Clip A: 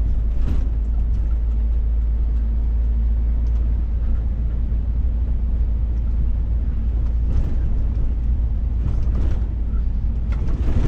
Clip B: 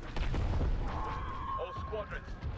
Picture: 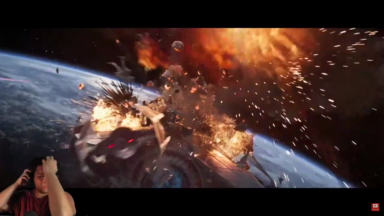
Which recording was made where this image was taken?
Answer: B